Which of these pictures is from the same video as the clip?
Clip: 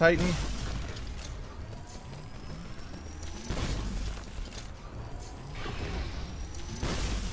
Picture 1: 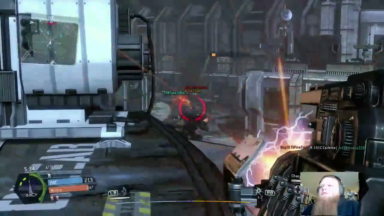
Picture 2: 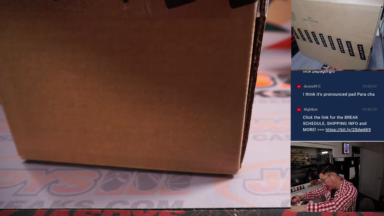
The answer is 1